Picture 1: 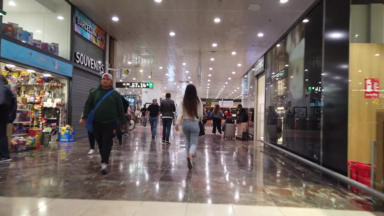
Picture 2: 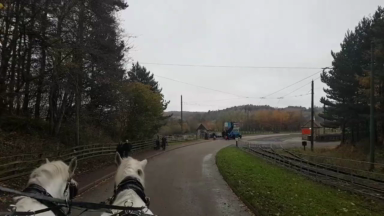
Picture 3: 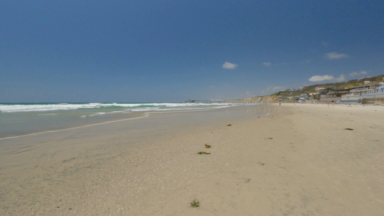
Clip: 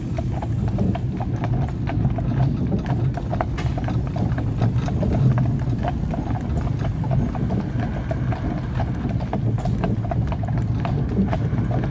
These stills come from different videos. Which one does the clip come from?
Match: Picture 2